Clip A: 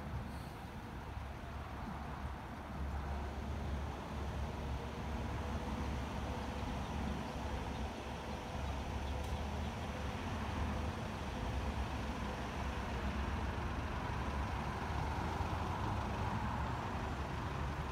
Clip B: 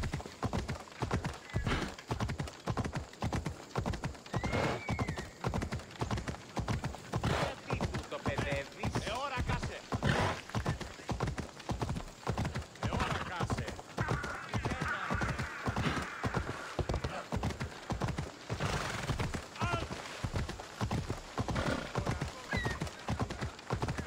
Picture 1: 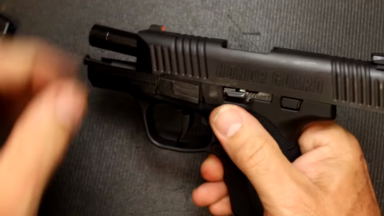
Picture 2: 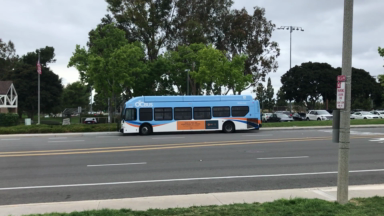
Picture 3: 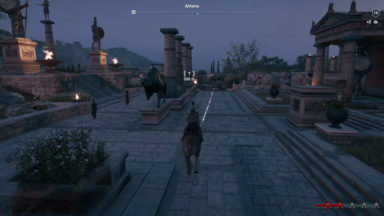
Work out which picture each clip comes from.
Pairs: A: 2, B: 3